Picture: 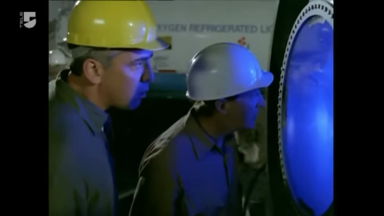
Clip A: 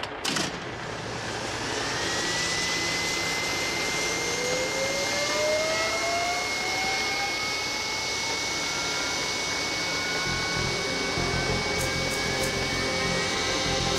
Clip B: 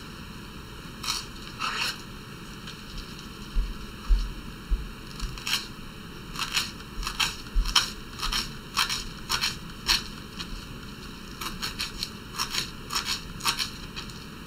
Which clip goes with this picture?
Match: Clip A